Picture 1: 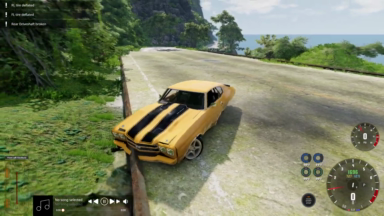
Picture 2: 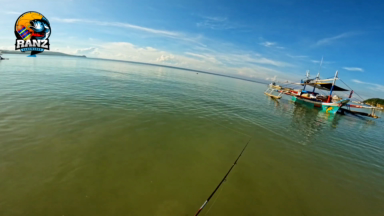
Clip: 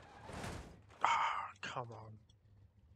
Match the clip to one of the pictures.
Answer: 1